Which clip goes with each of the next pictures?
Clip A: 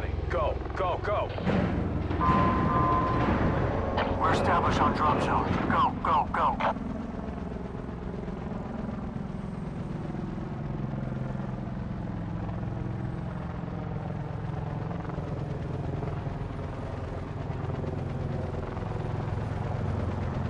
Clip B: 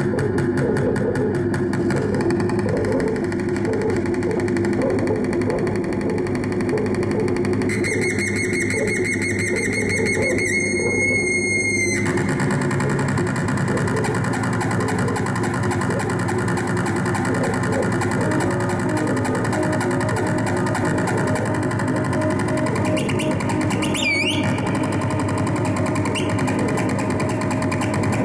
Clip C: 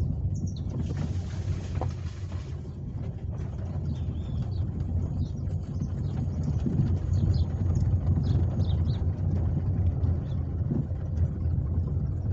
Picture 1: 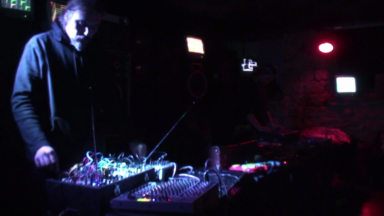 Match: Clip B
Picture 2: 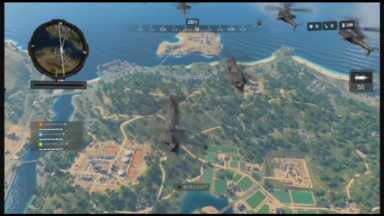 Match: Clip A